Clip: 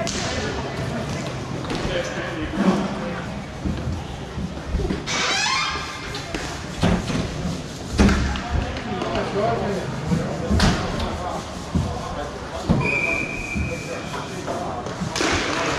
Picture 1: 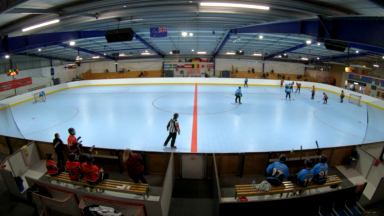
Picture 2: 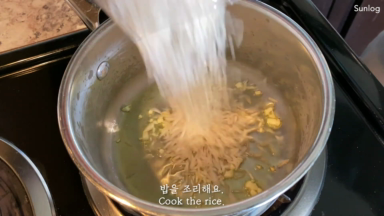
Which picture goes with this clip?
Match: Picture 1